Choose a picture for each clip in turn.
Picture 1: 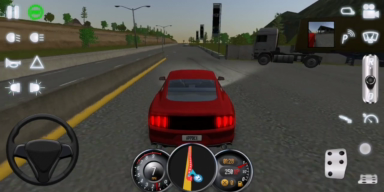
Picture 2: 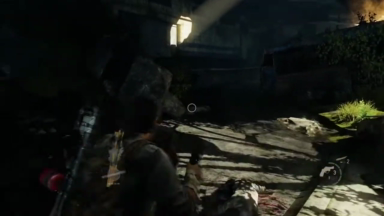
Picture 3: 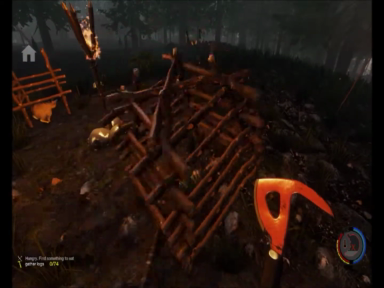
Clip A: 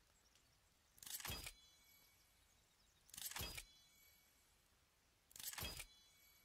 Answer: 3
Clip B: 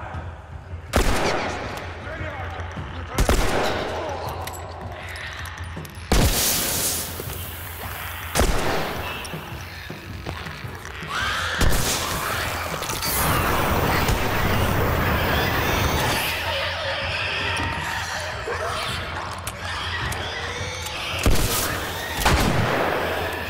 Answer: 2